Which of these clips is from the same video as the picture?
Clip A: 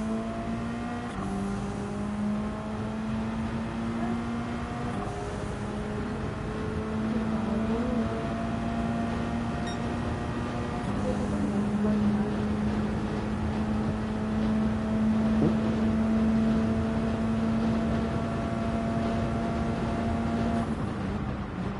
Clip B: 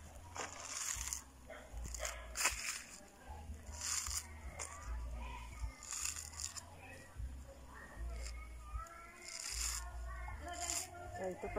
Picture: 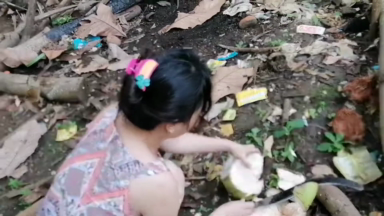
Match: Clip B